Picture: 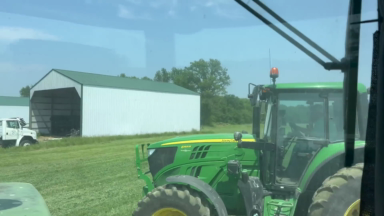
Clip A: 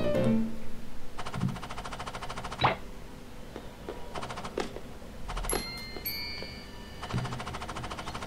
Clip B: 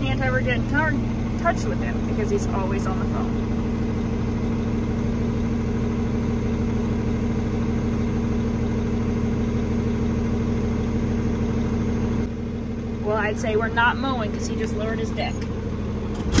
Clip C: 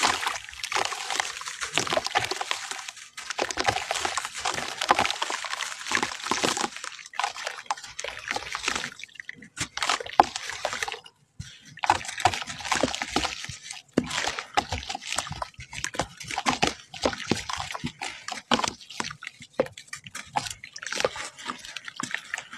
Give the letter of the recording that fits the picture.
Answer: B